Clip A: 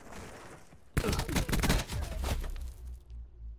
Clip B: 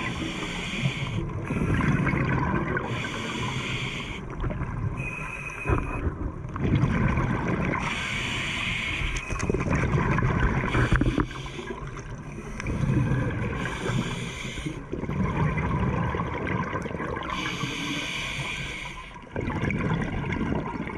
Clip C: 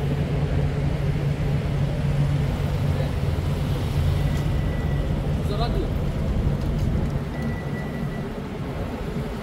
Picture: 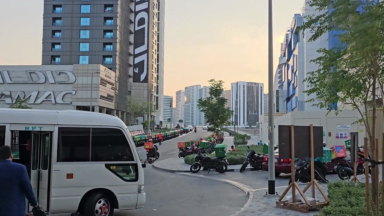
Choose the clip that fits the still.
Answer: C